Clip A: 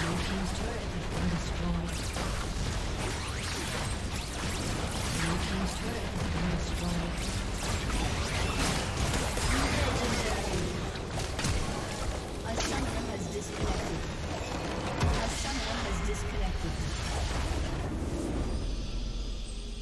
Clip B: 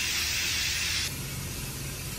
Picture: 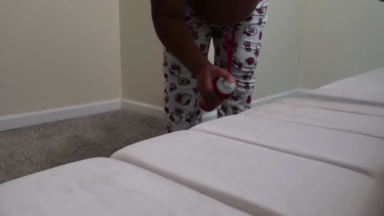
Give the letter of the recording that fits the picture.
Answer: B